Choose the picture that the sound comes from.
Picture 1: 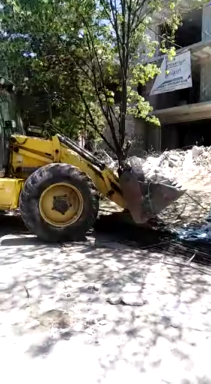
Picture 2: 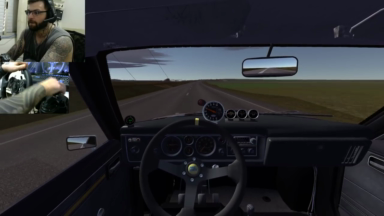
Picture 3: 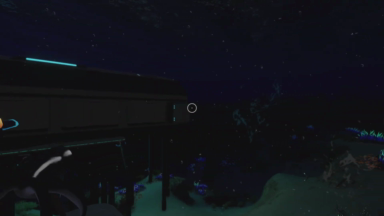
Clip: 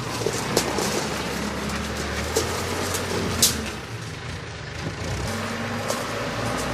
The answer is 1